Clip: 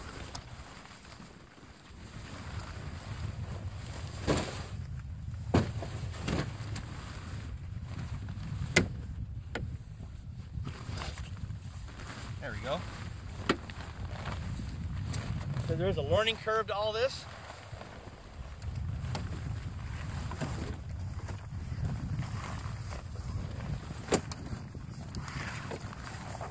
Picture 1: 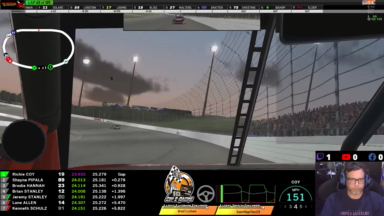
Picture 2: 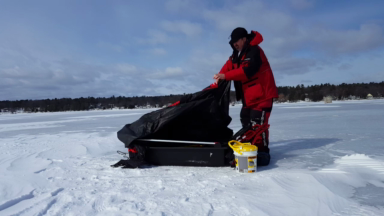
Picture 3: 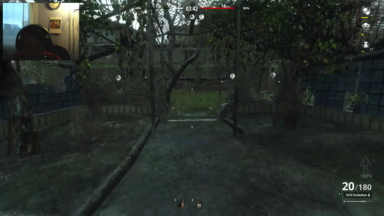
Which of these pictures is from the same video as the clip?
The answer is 2